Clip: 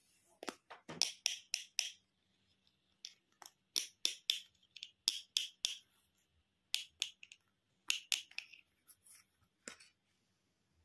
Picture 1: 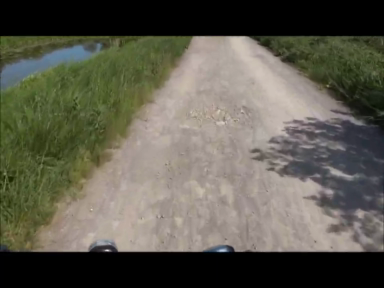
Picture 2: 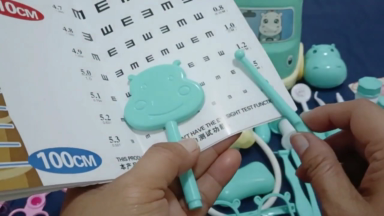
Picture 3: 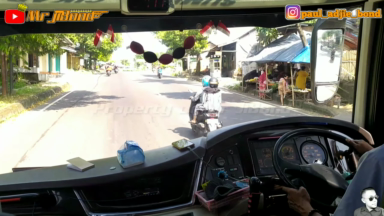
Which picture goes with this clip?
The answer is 2